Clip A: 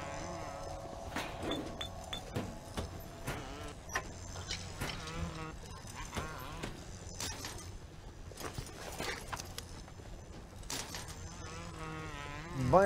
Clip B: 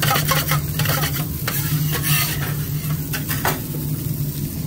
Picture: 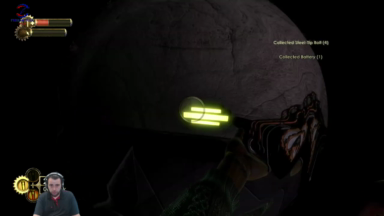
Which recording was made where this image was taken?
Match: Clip A